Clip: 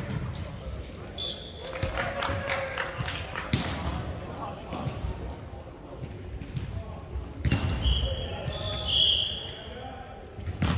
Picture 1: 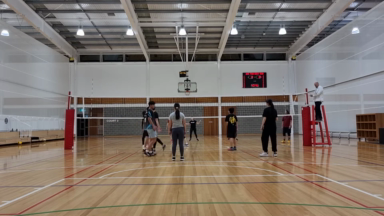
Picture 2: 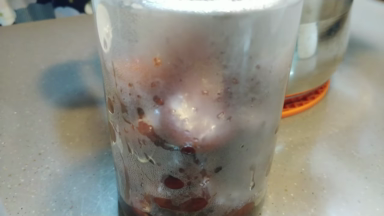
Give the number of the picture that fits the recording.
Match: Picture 1